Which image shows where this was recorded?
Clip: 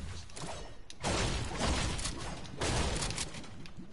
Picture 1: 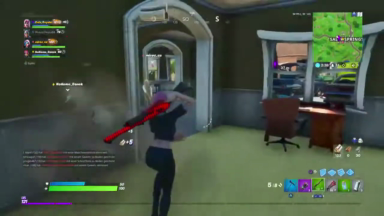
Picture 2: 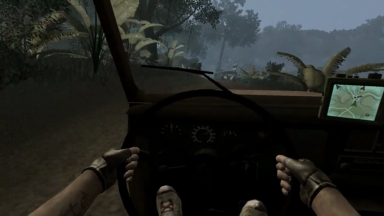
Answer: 1